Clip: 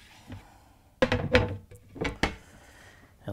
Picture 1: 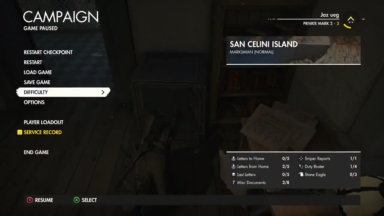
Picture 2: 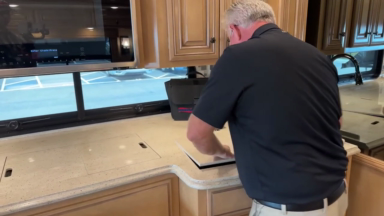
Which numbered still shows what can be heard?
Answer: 2